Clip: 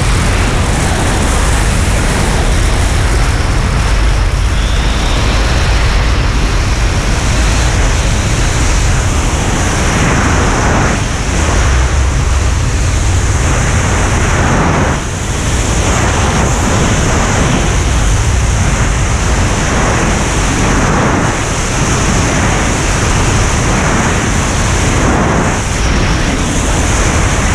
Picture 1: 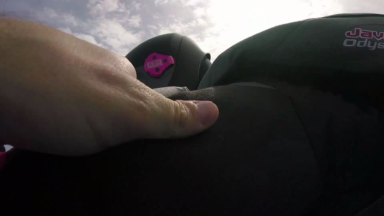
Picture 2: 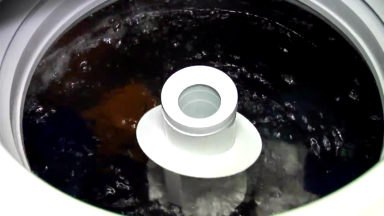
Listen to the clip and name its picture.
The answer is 1